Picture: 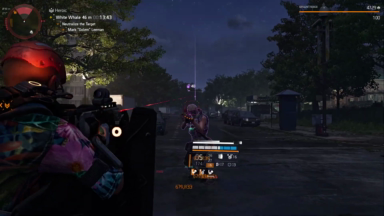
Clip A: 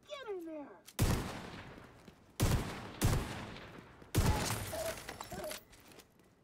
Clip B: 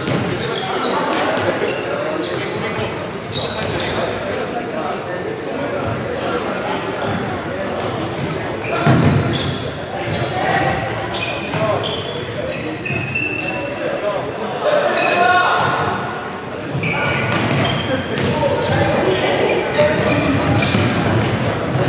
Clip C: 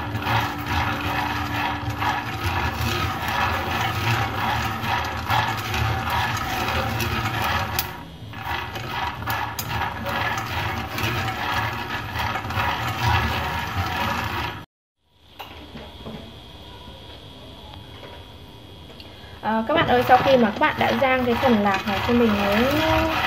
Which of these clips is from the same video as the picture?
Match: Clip A